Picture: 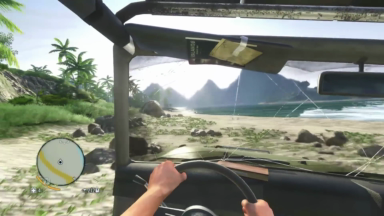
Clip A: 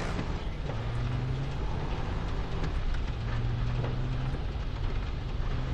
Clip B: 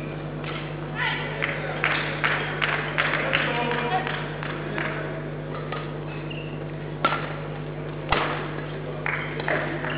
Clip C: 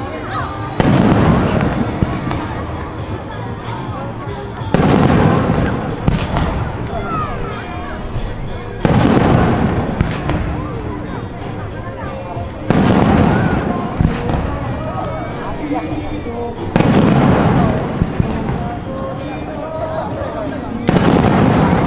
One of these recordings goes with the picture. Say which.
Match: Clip A